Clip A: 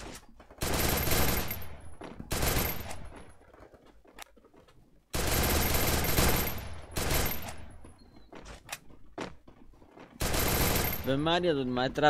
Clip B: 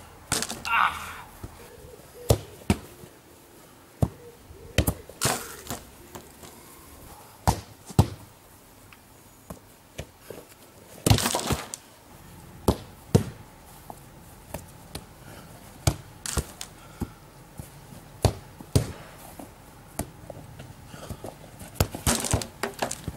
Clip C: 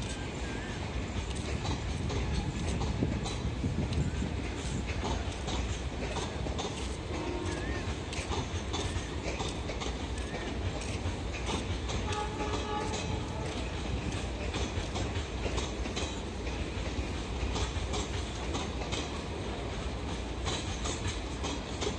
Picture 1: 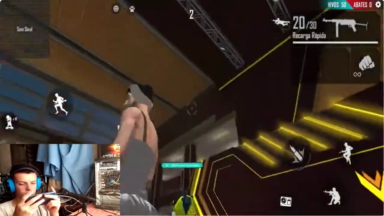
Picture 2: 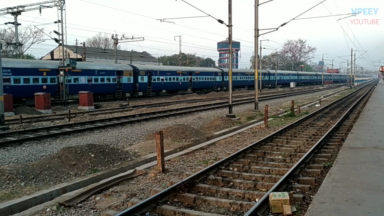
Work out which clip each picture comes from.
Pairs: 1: A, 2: C